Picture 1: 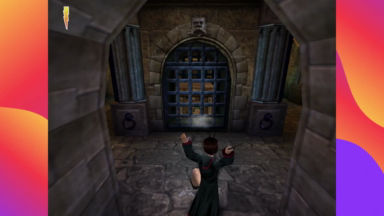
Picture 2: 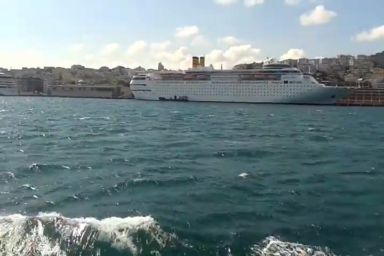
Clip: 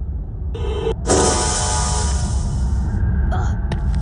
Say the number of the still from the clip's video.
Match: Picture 1